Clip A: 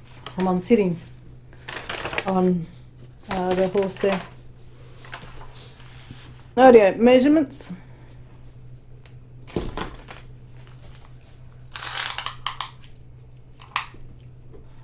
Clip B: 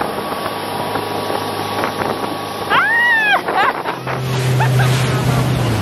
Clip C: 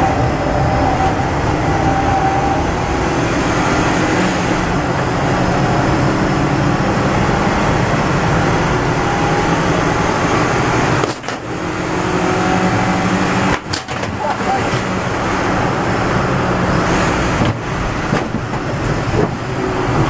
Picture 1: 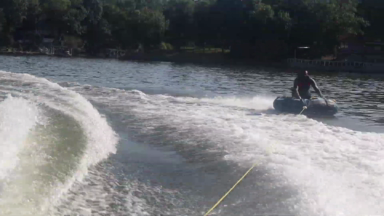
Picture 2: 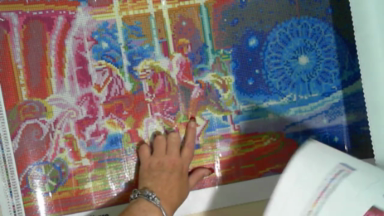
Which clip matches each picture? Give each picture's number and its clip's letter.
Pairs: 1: B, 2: A